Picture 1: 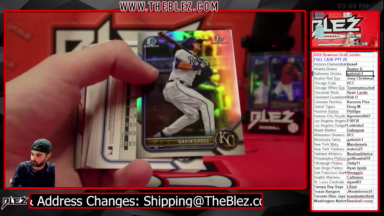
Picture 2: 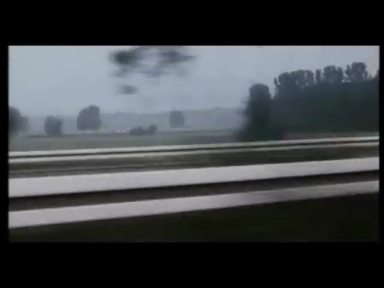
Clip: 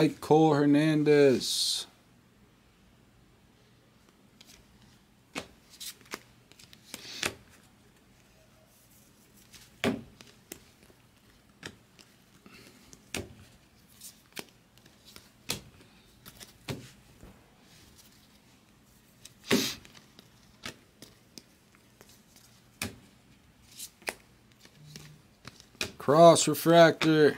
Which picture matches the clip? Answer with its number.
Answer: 1